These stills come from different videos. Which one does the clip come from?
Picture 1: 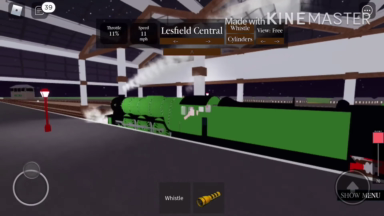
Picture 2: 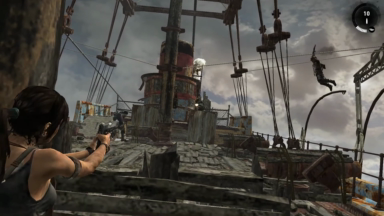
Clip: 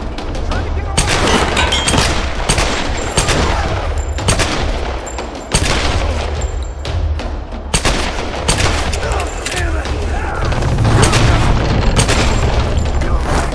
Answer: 2